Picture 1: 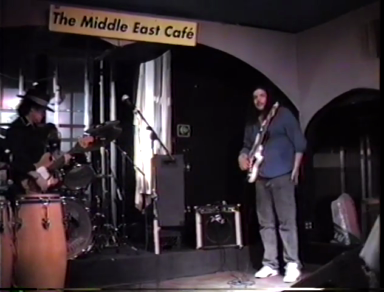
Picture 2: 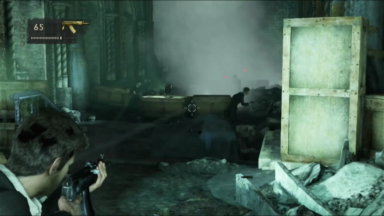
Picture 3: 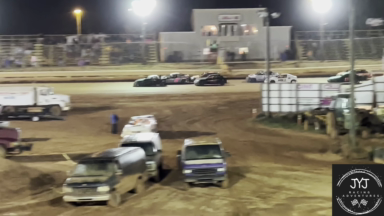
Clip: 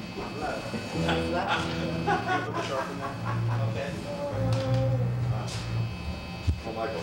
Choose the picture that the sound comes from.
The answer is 1